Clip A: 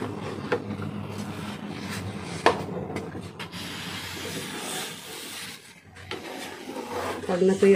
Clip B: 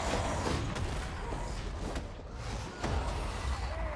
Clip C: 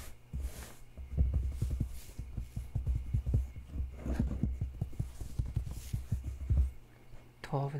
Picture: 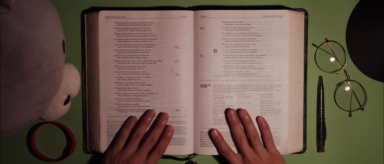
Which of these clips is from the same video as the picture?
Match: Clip C